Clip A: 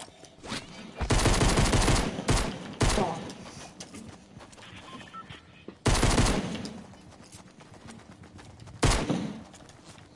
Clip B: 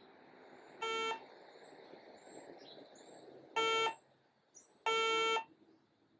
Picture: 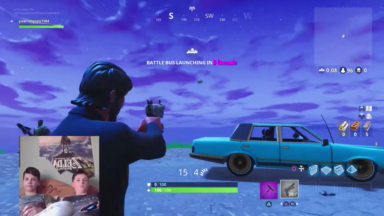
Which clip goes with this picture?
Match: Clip A